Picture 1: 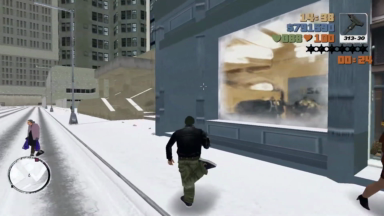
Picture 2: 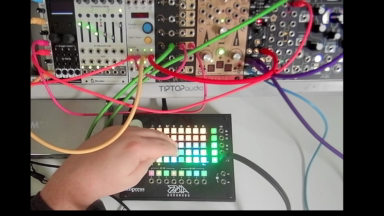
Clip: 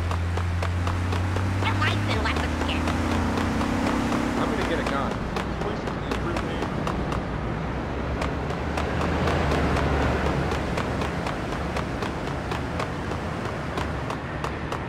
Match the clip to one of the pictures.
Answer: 1